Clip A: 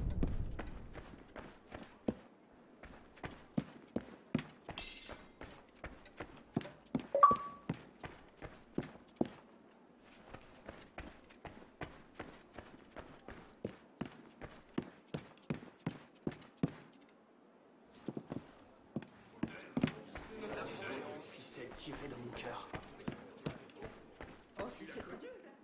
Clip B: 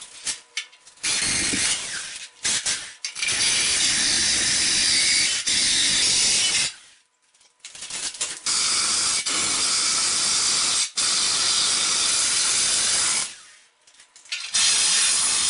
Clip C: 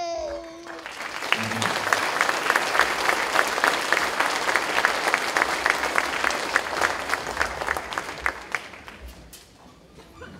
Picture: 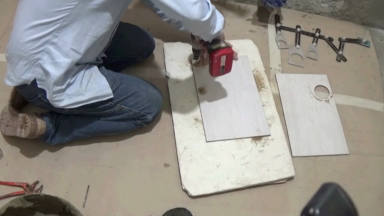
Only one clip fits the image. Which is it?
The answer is B